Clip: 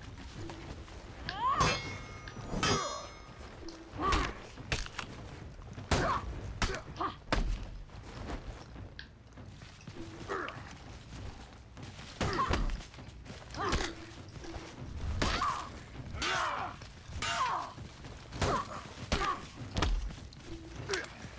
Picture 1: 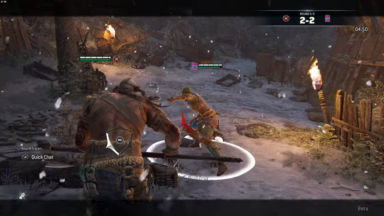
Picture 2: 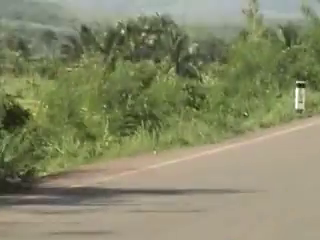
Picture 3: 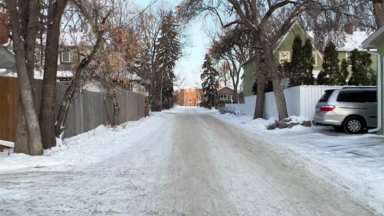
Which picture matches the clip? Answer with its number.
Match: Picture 1